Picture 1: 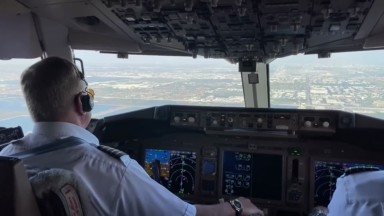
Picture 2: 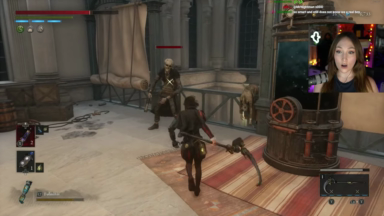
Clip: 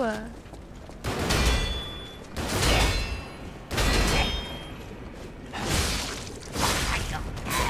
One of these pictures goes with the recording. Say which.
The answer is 2